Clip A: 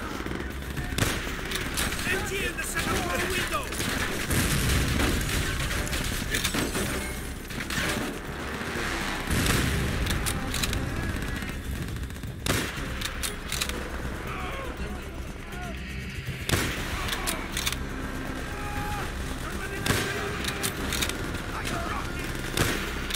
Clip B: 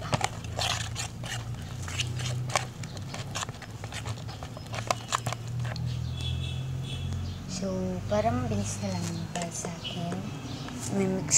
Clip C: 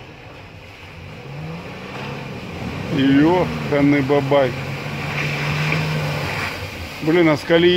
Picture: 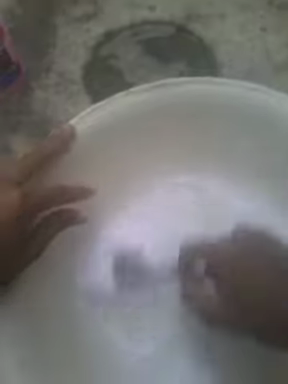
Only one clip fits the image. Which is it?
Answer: B